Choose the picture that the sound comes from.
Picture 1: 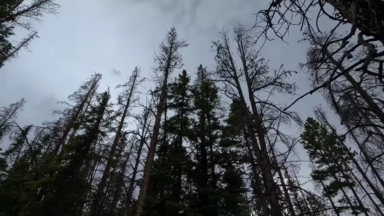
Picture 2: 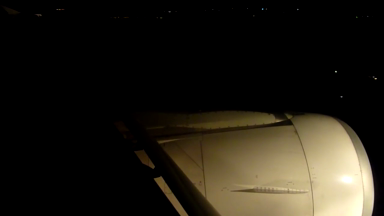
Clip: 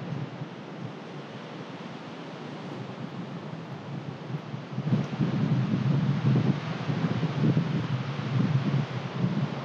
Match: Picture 1